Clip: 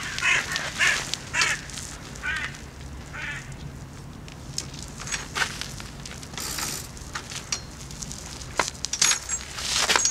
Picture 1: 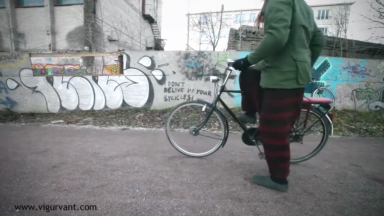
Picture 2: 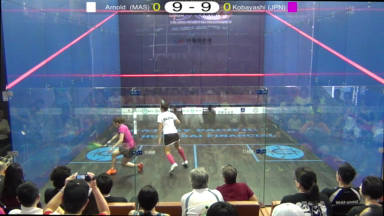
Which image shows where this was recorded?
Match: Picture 1